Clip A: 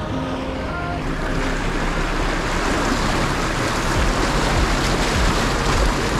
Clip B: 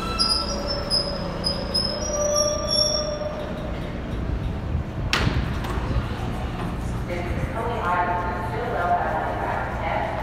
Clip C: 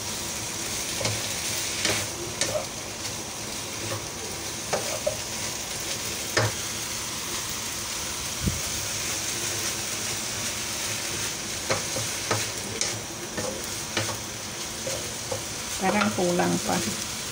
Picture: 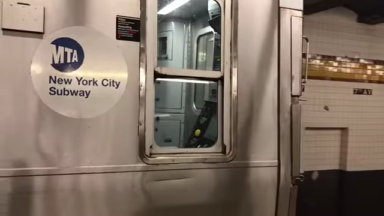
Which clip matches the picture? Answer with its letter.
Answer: B